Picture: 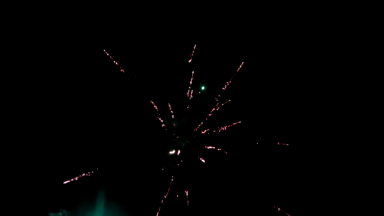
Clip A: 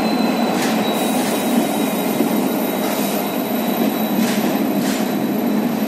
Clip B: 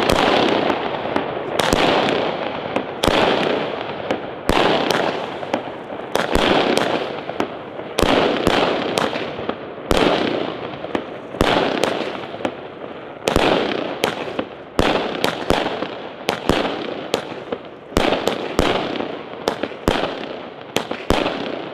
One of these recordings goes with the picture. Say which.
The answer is B